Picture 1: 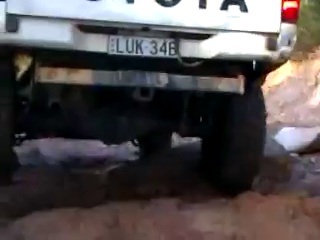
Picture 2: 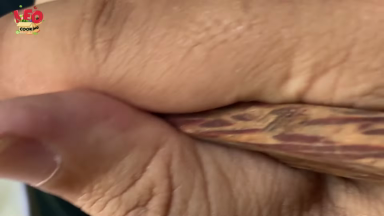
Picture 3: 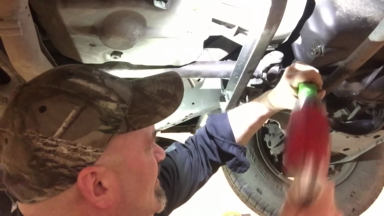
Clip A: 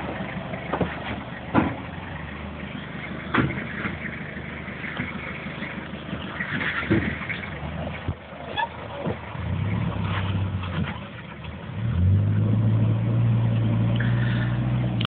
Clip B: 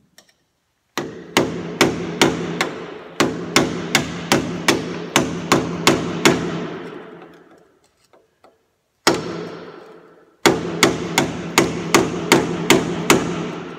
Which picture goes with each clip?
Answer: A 1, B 3